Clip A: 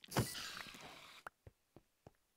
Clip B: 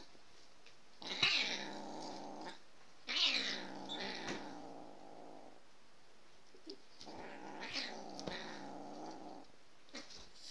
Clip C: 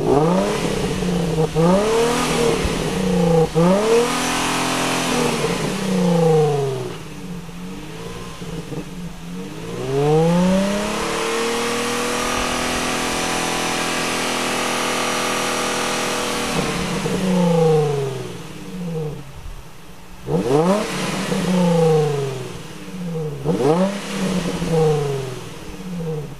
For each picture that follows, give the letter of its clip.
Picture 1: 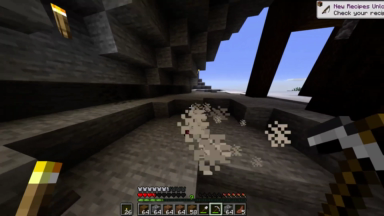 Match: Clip A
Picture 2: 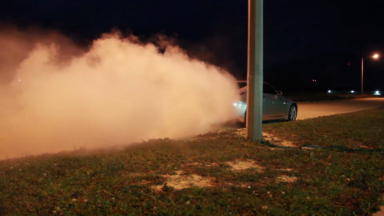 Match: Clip C